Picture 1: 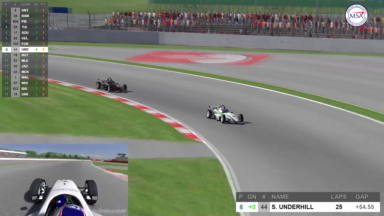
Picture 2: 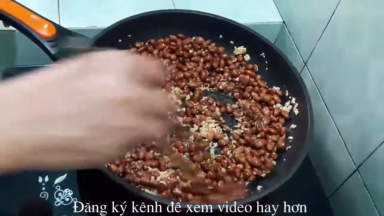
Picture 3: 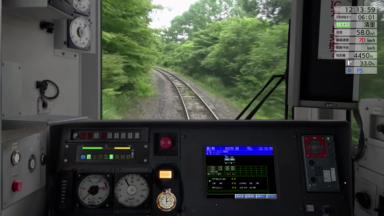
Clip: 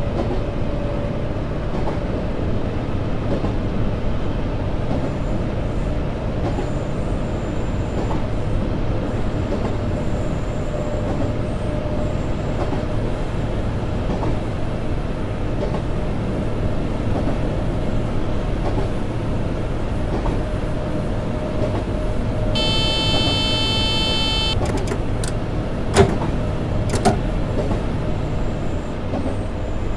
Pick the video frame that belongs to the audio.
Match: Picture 3